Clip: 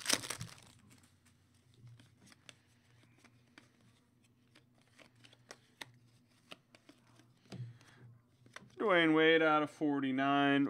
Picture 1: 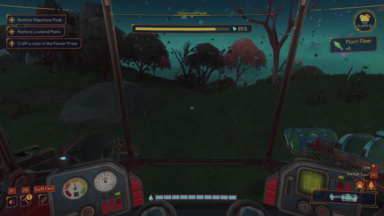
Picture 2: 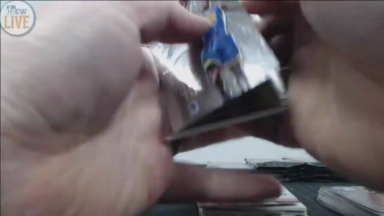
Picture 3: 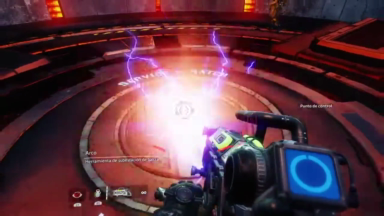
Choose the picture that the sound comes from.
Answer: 2